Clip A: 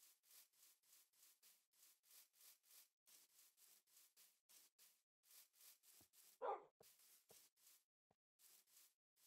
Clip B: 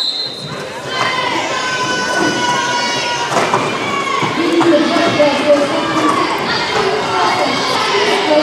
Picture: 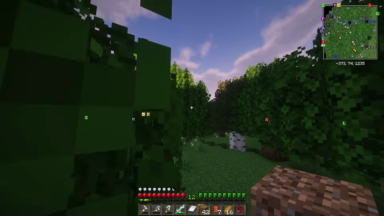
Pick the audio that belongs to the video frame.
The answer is A